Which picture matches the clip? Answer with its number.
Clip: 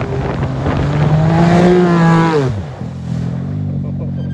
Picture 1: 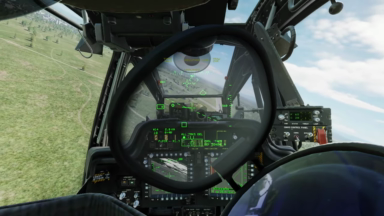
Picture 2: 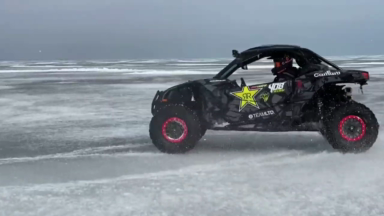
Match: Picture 2